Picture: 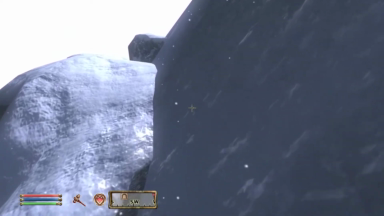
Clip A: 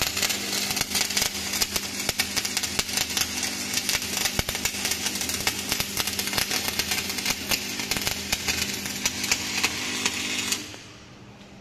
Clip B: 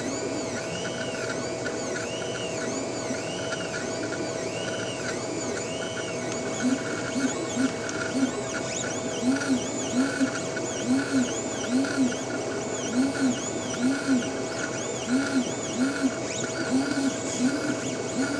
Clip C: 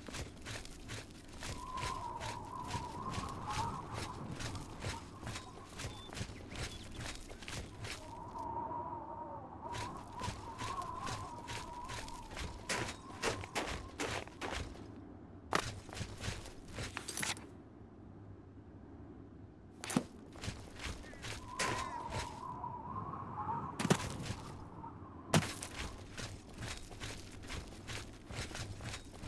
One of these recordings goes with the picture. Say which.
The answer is C